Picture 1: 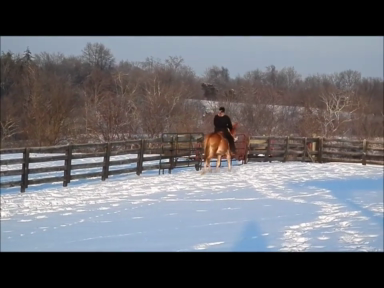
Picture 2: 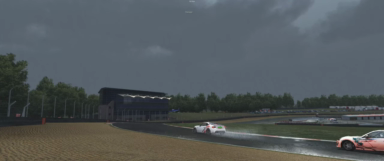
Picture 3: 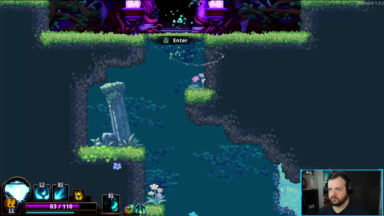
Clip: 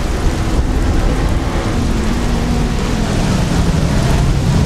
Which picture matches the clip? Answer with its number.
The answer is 2